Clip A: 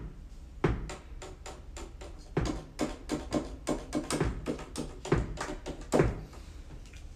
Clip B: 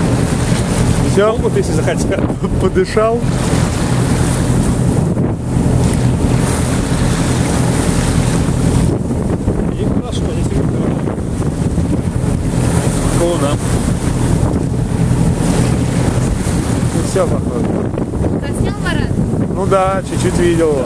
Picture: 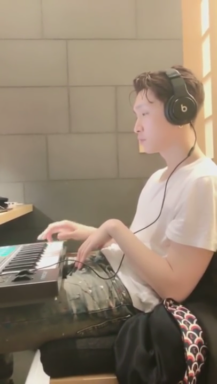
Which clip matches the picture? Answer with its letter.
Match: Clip A